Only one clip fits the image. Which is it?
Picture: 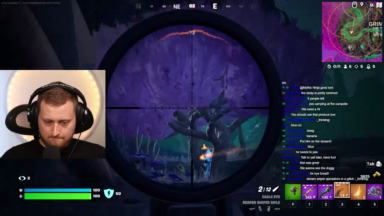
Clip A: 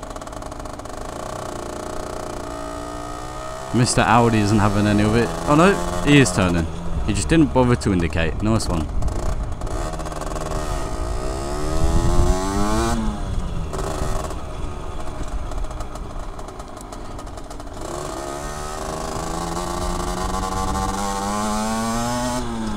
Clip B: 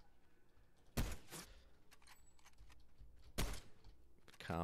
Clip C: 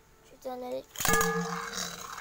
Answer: B